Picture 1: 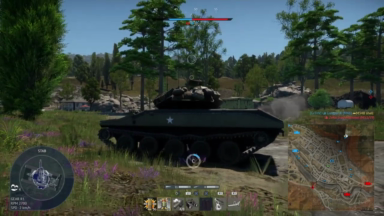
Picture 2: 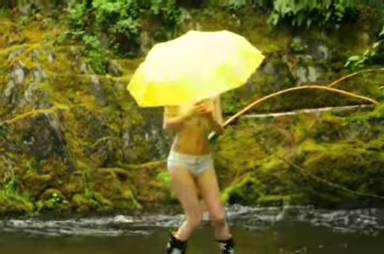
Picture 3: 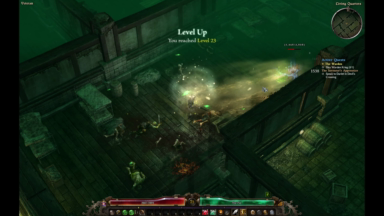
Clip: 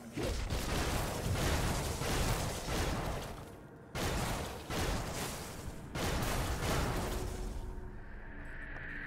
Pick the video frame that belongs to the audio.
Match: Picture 3